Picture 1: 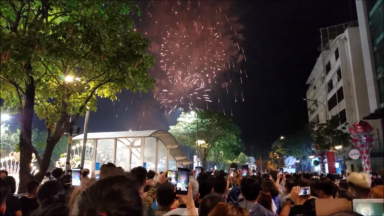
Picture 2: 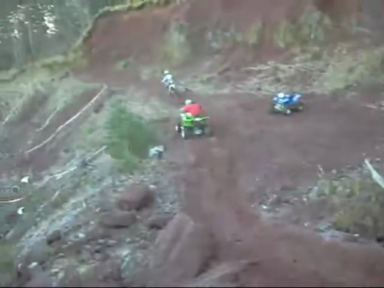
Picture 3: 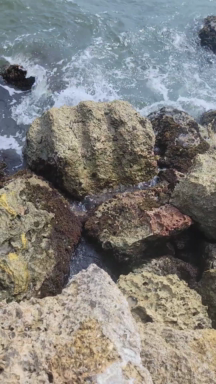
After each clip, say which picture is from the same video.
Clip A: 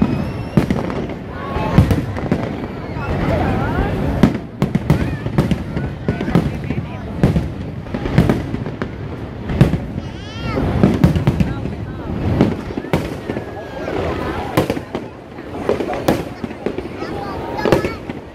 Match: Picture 1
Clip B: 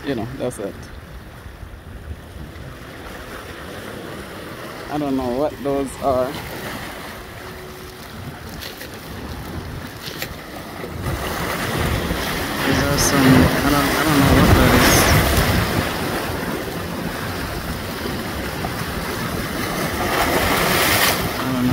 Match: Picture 3